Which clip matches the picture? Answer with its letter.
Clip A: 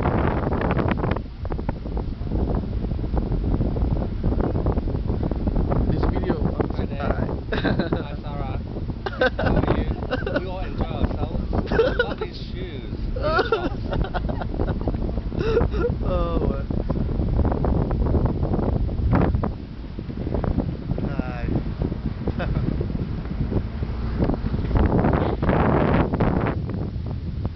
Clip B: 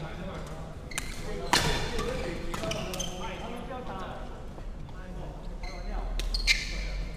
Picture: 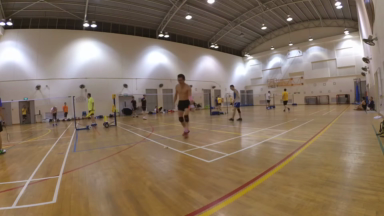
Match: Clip B